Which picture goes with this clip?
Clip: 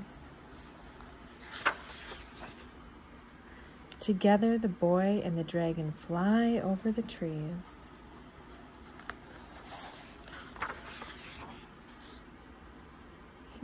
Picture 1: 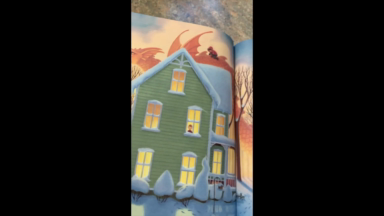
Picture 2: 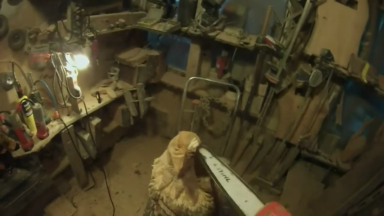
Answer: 1